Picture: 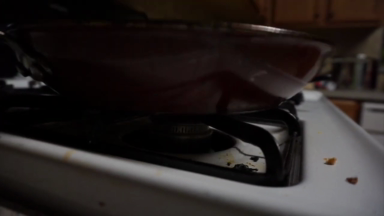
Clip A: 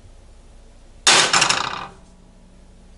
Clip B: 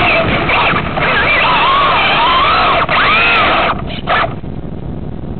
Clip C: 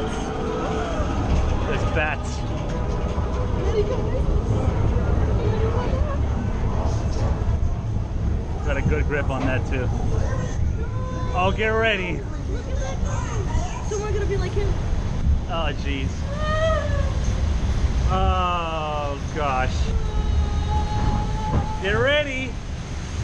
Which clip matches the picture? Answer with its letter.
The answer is A